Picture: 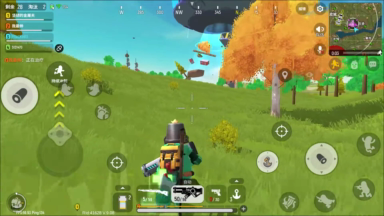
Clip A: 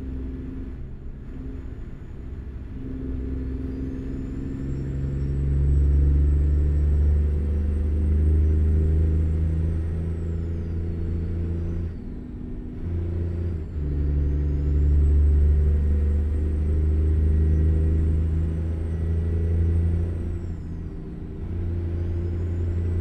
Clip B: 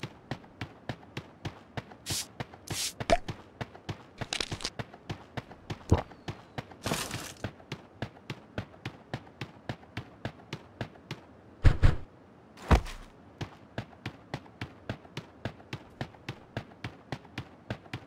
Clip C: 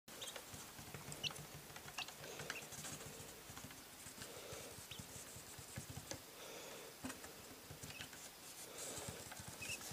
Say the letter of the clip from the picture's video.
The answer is B